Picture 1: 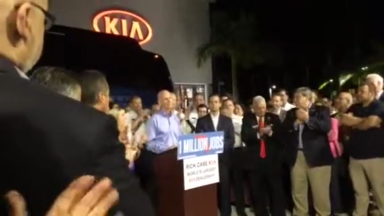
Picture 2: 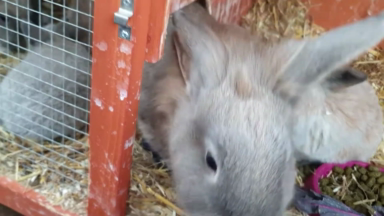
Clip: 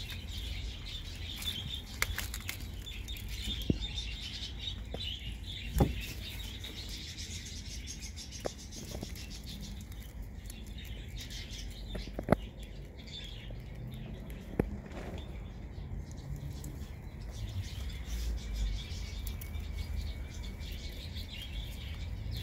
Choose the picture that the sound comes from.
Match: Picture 2